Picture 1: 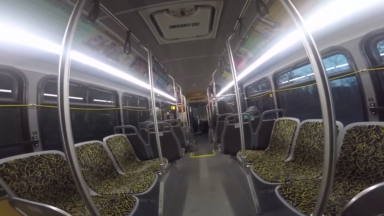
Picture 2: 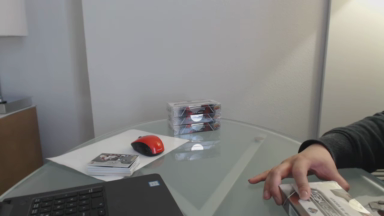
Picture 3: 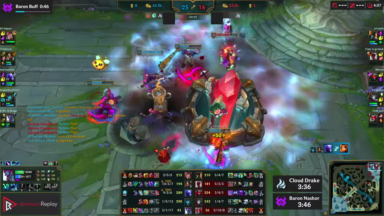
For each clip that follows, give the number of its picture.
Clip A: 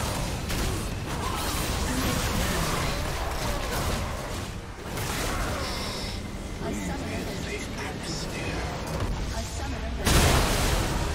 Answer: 3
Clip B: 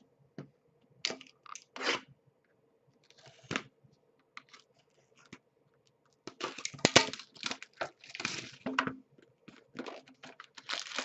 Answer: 2